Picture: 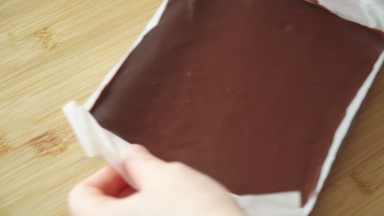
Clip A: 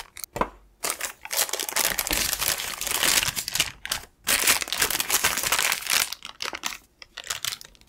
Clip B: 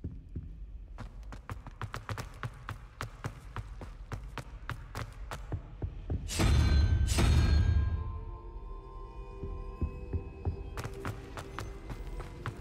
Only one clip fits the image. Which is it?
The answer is A